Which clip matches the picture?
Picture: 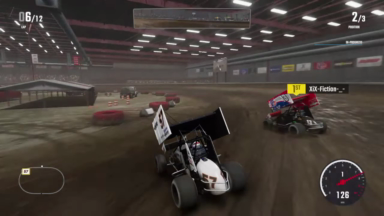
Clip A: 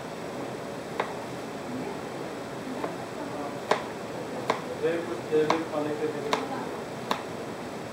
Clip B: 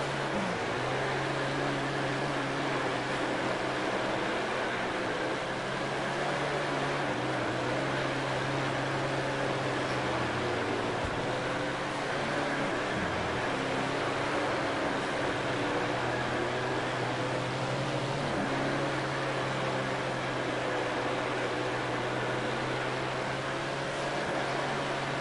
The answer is B